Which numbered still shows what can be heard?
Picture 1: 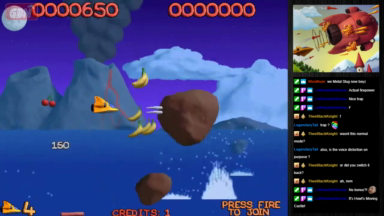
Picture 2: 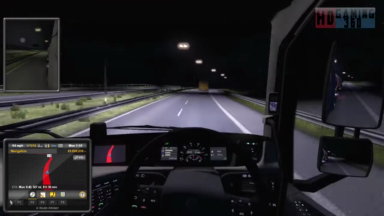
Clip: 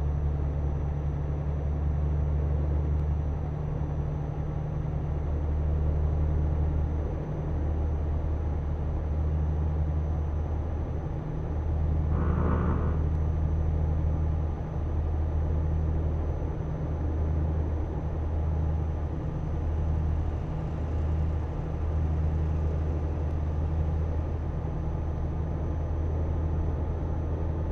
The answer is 2